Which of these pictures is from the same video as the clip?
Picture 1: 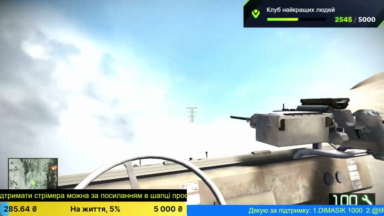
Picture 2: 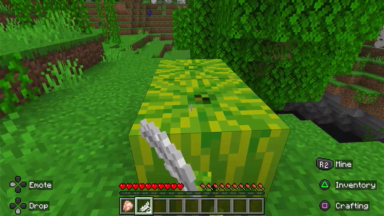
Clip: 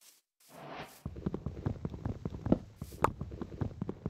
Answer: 2